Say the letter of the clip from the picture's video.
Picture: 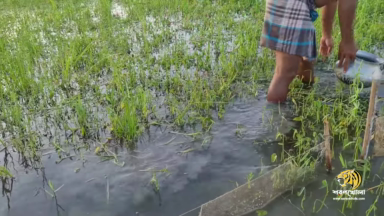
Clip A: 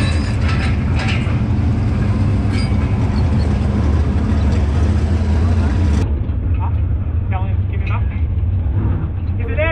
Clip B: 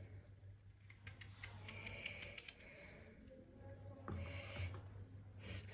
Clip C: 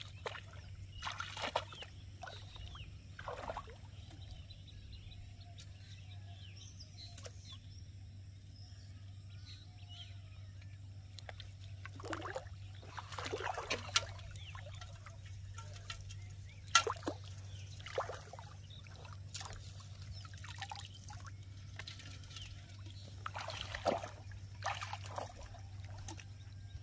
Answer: C